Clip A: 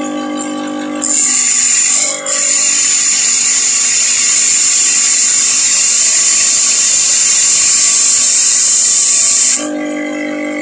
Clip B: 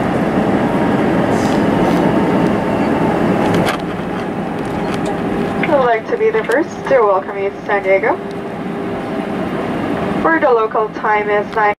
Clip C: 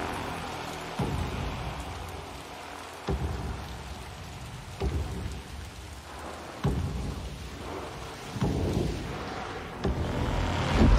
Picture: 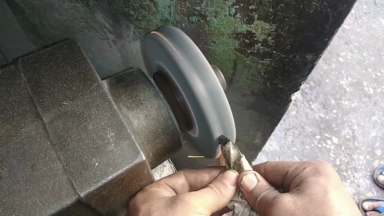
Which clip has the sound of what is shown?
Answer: A